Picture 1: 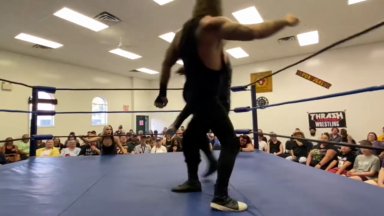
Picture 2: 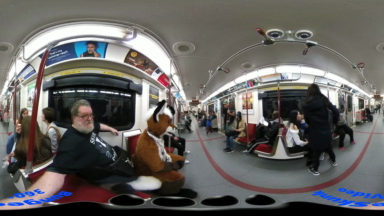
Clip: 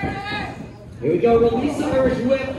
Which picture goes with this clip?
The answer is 1